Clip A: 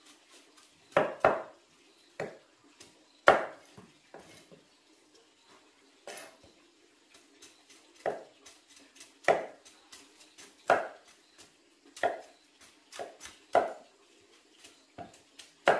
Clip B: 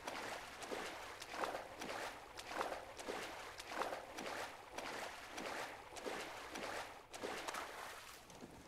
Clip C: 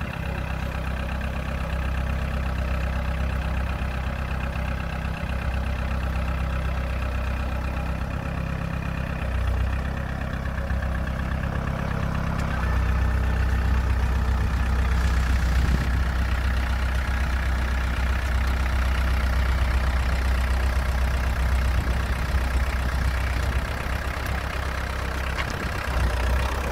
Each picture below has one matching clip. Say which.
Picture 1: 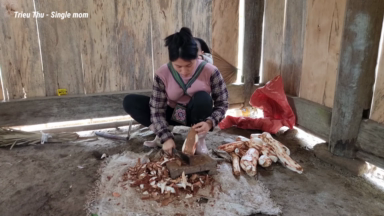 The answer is A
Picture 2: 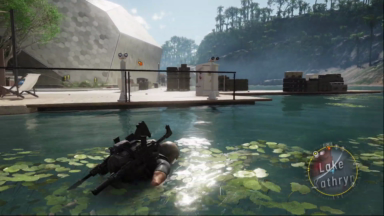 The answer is B